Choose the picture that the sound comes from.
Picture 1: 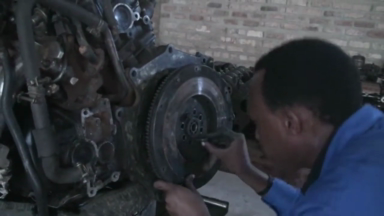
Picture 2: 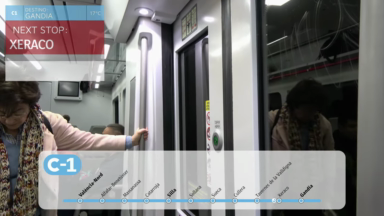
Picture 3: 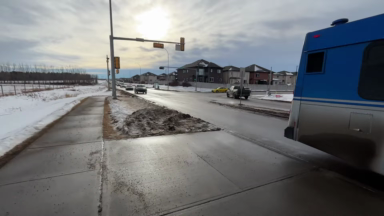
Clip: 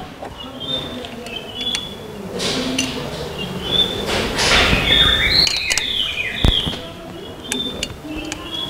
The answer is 1